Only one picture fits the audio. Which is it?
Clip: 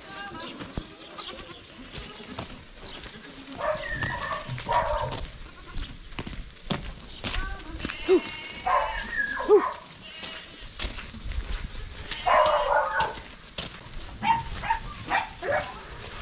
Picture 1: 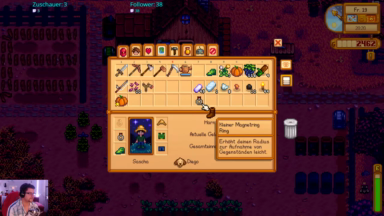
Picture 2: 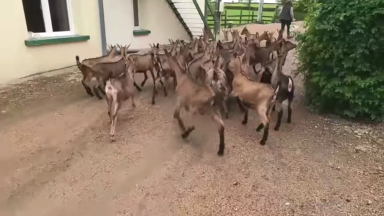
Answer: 2